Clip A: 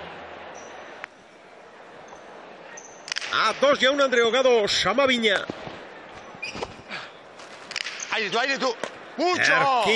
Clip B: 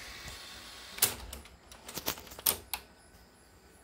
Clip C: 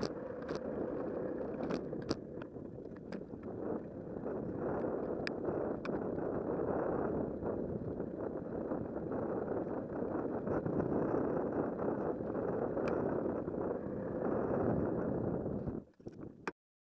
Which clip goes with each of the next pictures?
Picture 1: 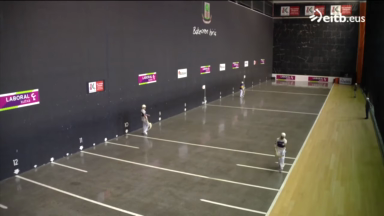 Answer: A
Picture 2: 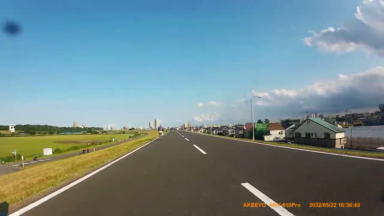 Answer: C